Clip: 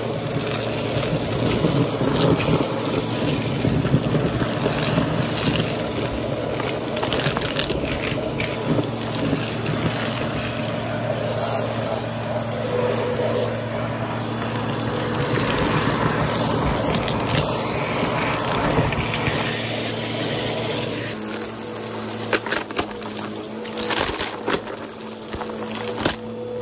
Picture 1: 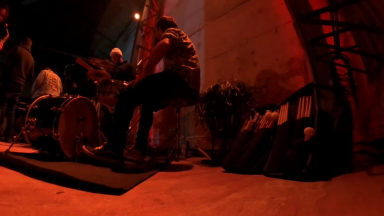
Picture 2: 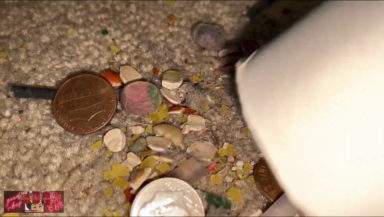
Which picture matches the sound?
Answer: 2